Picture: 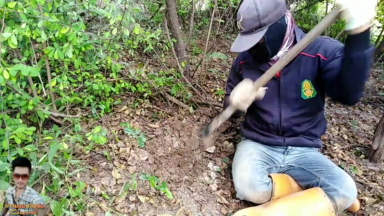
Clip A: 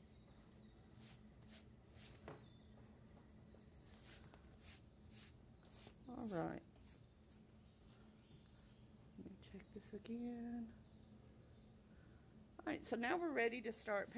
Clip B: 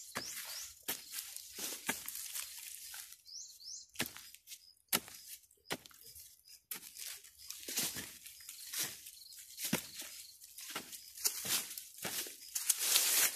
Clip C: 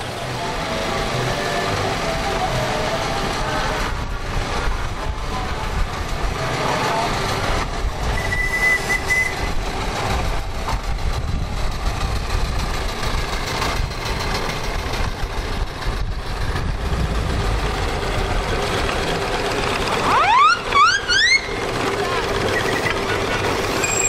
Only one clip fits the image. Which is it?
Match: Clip B